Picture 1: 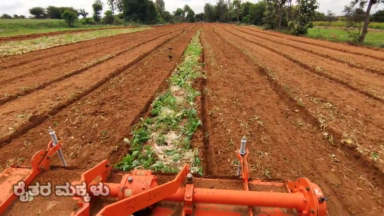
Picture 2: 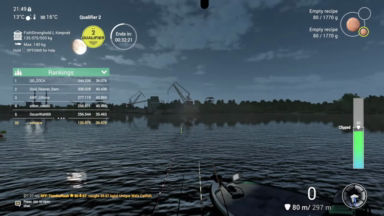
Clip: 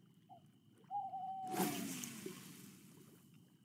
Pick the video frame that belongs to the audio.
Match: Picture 2